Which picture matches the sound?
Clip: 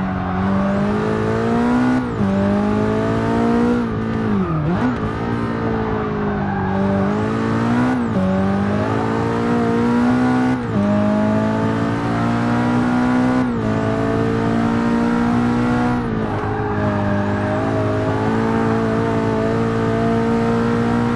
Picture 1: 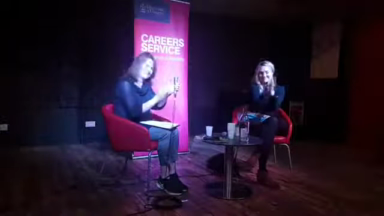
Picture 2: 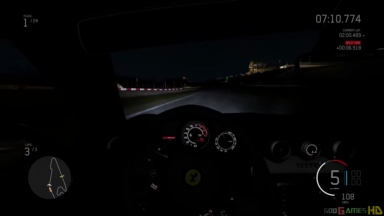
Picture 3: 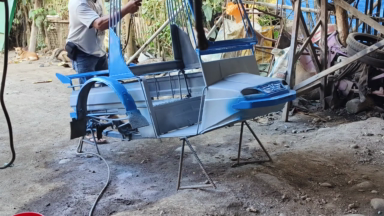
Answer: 2